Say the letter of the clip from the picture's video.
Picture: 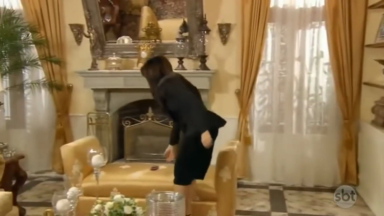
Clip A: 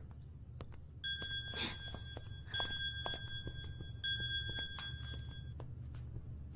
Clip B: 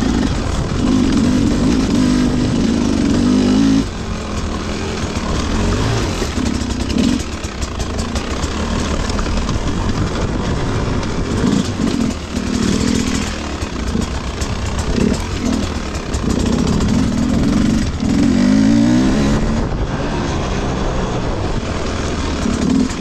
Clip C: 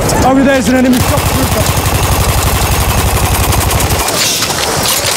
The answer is A